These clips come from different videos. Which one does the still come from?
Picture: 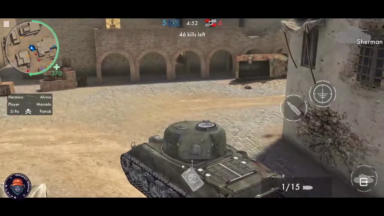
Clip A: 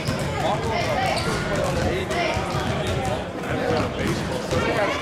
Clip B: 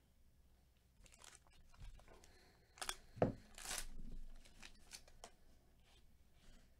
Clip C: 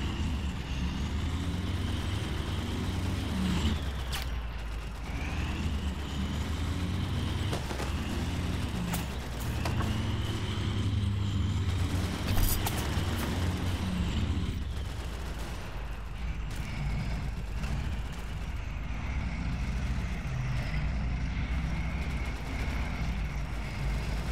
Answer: C